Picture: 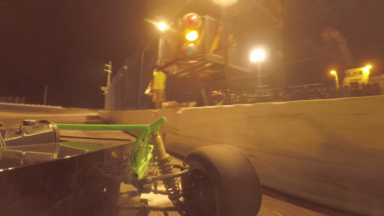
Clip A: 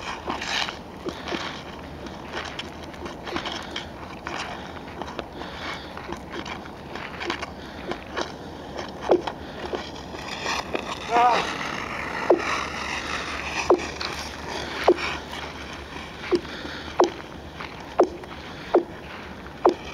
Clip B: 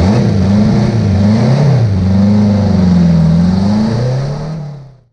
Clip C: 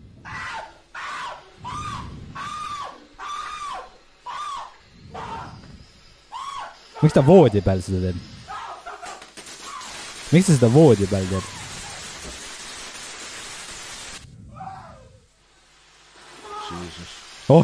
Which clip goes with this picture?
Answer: B